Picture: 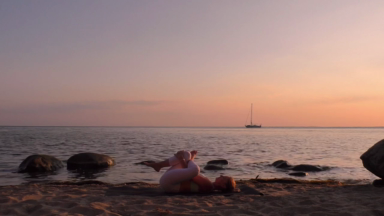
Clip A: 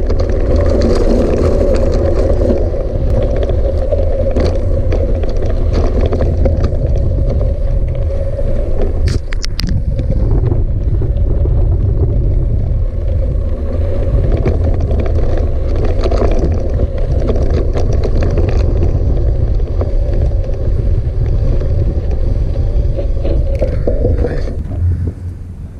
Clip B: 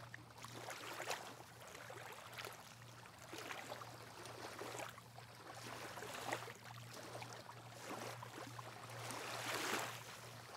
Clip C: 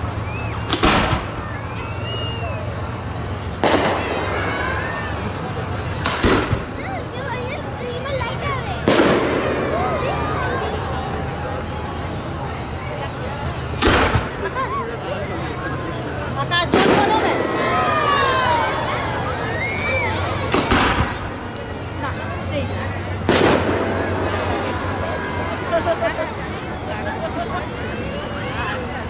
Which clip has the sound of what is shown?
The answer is B